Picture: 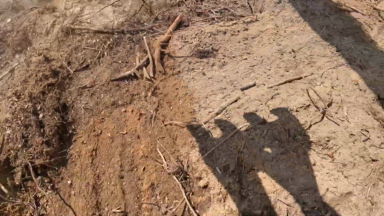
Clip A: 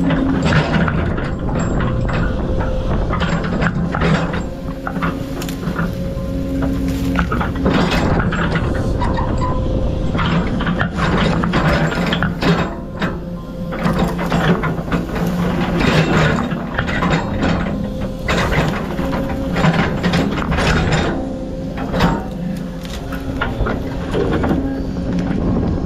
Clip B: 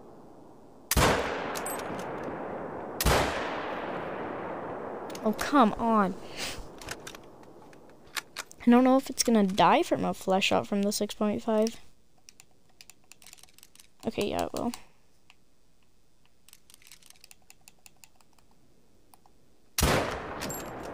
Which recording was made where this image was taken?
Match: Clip A